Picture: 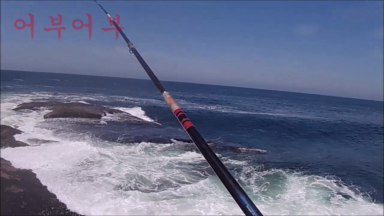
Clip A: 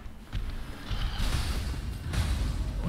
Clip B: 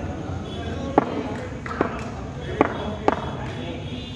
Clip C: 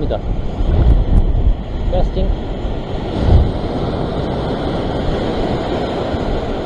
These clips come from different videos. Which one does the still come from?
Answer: C